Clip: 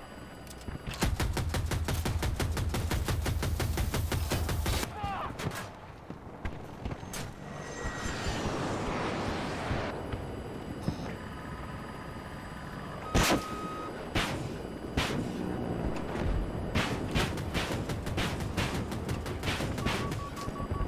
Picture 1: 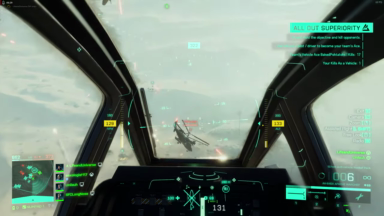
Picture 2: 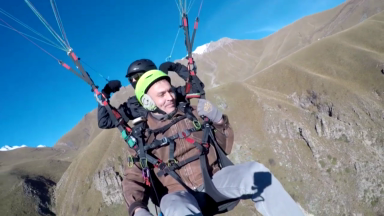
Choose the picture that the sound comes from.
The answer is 1